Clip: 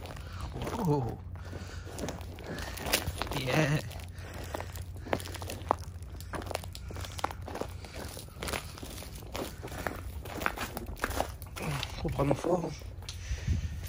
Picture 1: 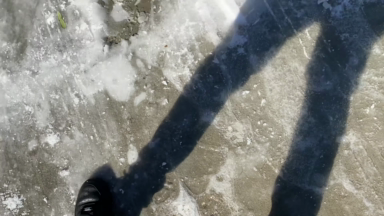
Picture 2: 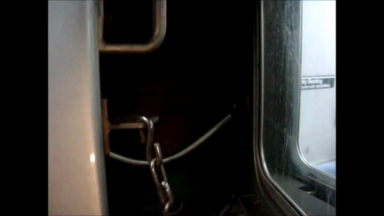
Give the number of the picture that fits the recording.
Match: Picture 1